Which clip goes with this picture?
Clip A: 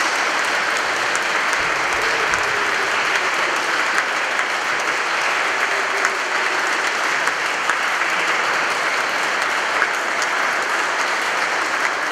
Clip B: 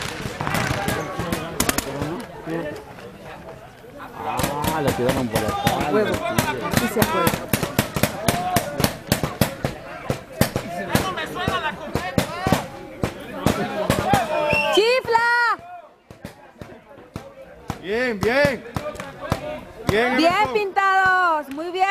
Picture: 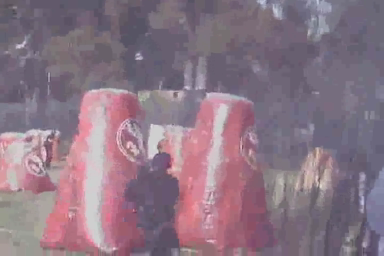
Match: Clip B